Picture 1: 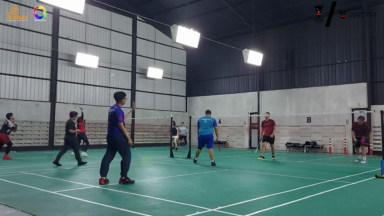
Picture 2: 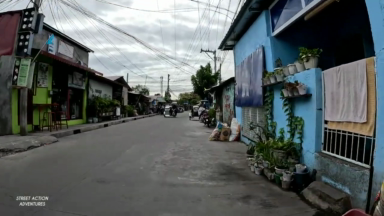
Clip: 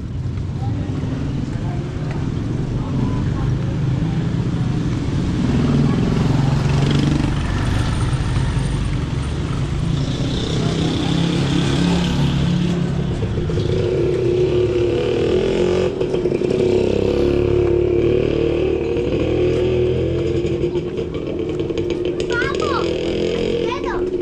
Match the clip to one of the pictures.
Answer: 2